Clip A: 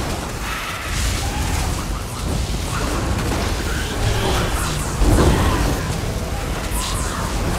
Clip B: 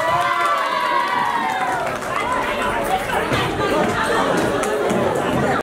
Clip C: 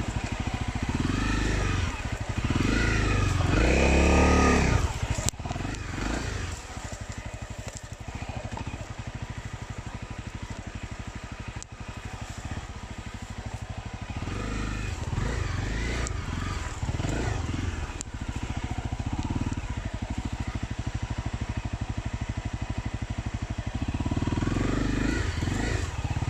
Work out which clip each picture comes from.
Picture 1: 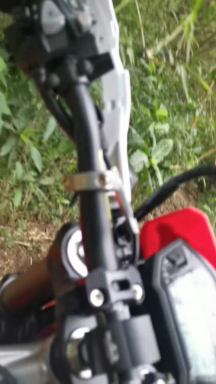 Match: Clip C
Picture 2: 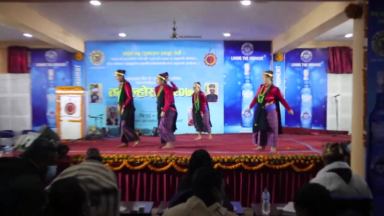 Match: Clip B